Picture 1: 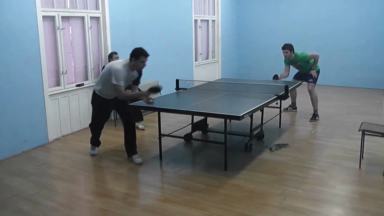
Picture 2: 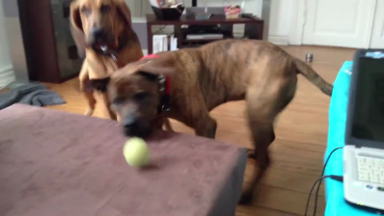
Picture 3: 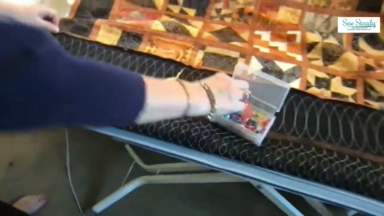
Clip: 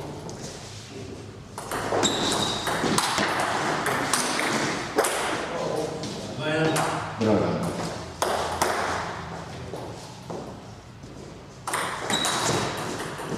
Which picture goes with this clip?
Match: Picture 1